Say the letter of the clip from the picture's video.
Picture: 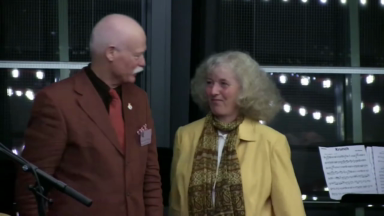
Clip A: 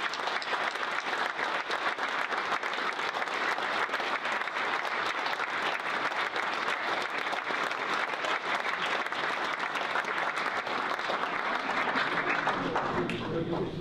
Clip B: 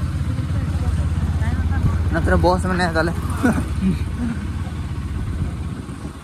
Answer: A